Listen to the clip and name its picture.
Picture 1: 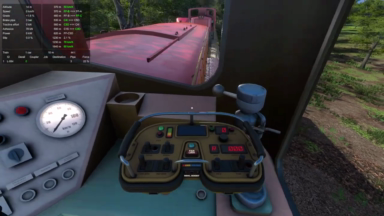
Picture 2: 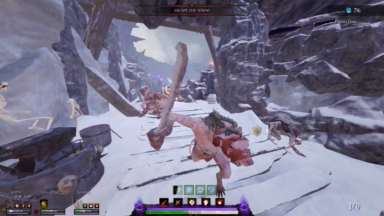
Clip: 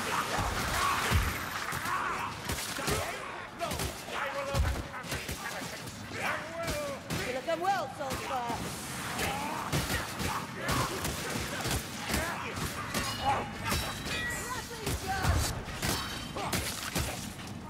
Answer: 2